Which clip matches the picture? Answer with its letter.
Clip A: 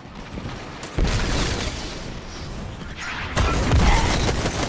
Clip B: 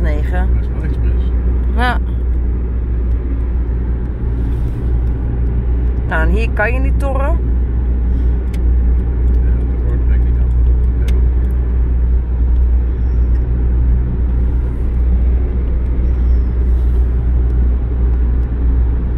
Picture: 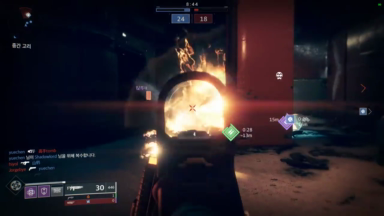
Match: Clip A